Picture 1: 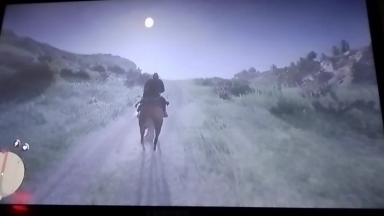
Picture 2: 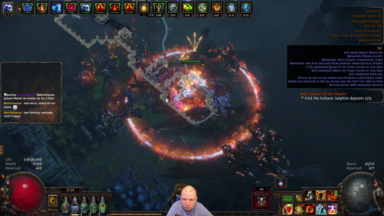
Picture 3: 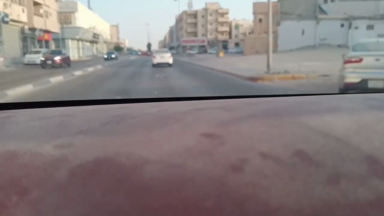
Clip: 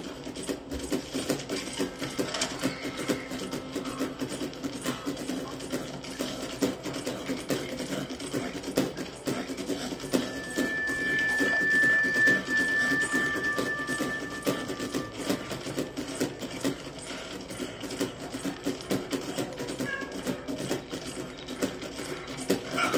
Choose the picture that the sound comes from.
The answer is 1